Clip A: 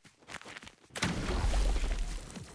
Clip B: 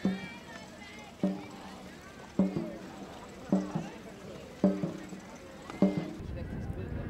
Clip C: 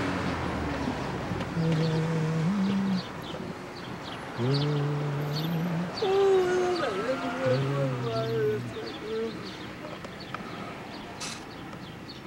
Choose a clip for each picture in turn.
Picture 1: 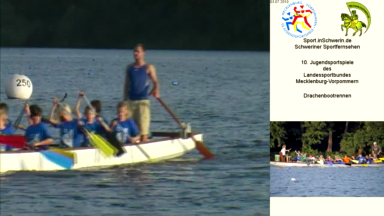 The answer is B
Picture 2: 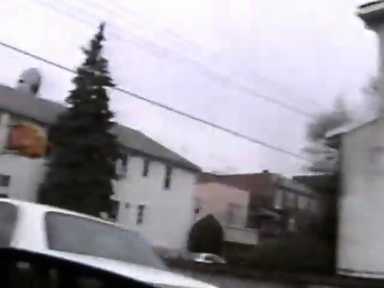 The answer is C